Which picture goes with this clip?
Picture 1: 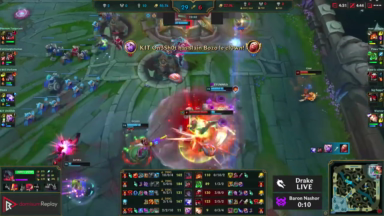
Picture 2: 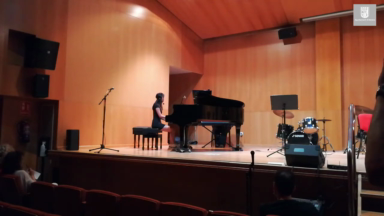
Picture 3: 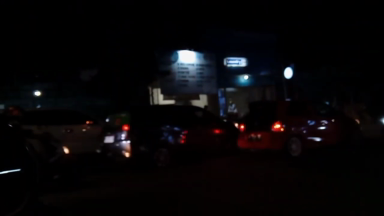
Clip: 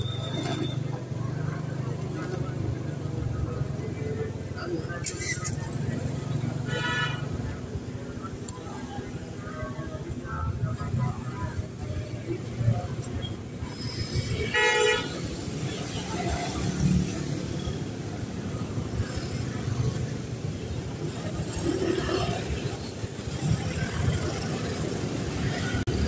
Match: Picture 3